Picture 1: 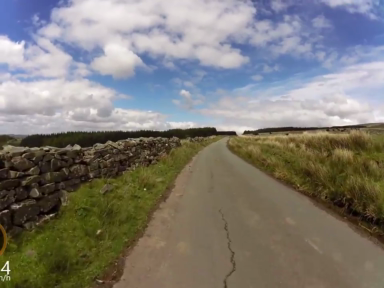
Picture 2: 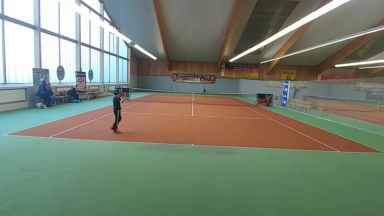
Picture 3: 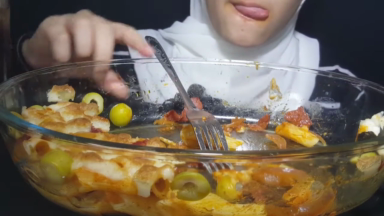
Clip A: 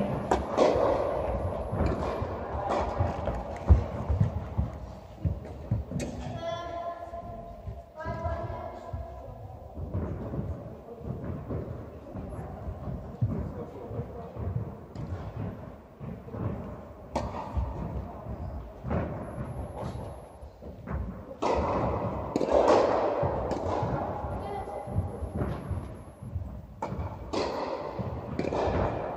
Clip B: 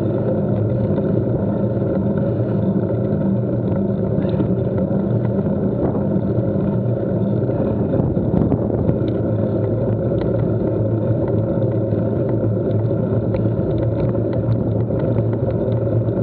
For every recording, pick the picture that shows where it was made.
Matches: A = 2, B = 1